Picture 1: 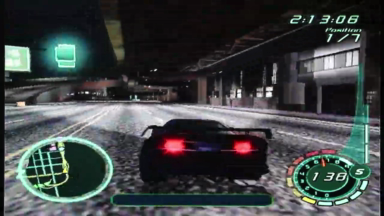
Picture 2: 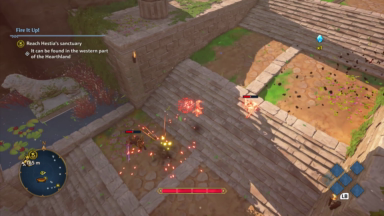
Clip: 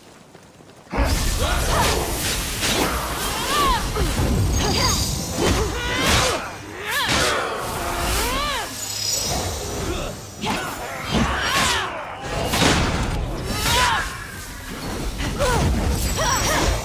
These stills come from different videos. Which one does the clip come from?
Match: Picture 2